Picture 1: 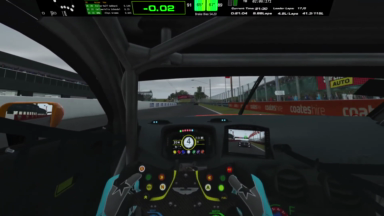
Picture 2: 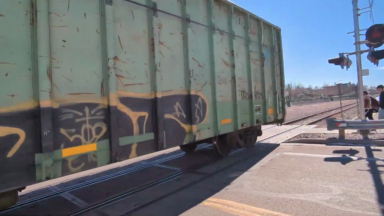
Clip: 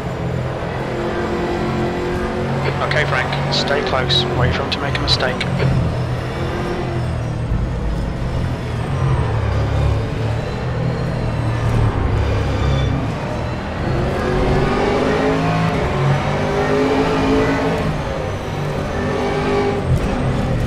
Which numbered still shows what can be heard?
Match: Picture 1